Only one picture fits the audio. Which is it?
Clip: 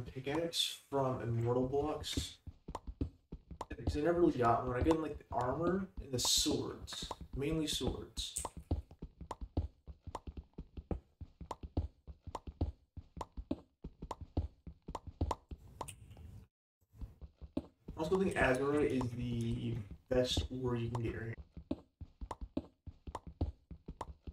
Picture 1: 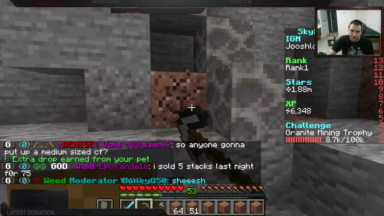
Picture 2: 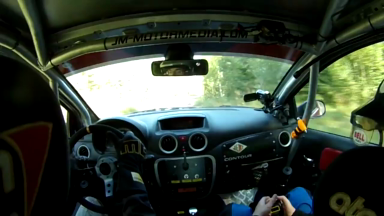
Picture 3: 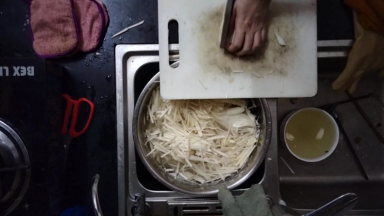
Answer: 1